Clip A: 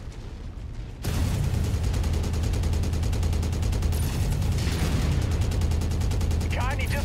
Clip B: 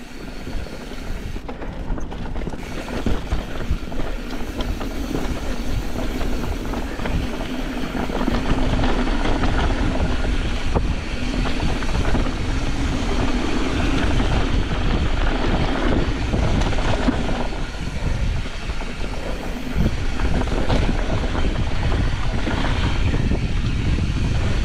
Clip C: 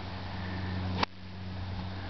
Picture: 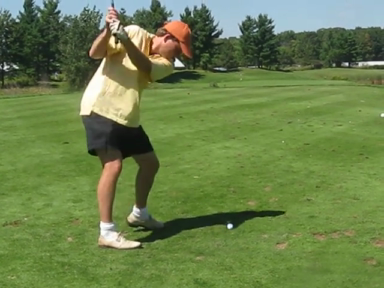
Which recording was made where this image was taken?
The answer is C